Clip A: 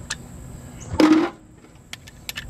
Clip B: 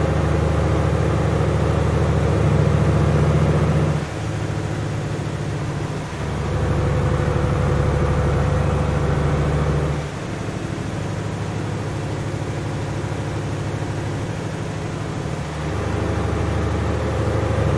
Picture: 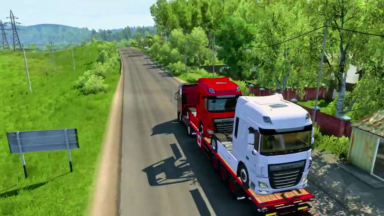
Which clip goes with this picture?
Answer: B